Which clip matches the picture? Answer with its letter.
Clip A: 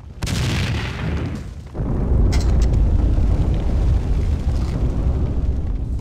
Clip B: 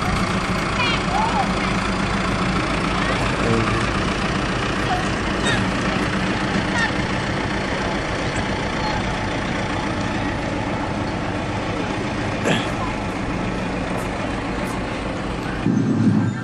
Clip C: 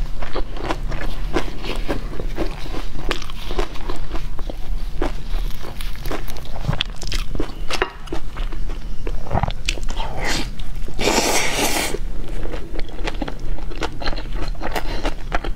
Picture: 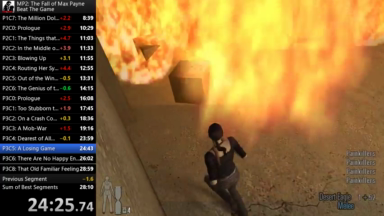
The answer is A